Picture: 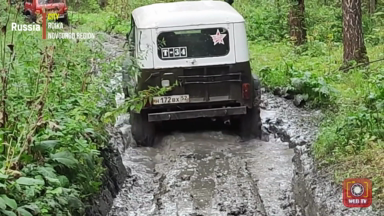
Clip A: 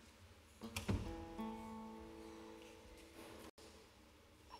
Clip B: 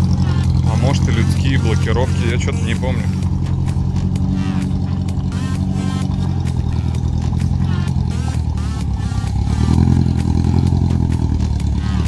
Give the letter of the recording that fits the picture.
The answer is B